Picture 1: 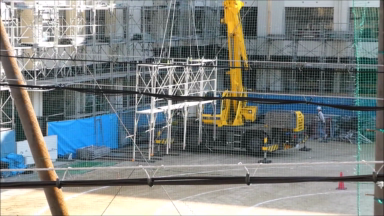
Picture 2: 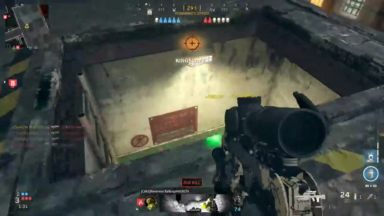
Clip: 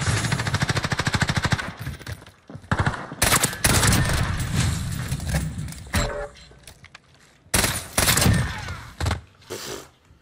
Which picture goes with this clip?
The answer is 2